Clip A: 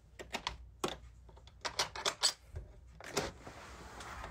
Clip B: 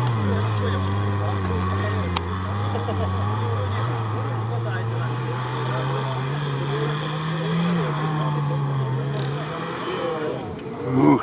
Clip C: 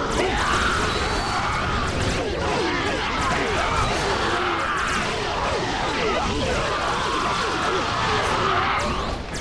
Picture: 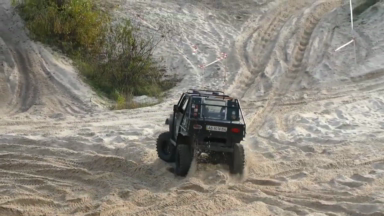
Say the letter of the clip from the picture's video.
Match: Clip B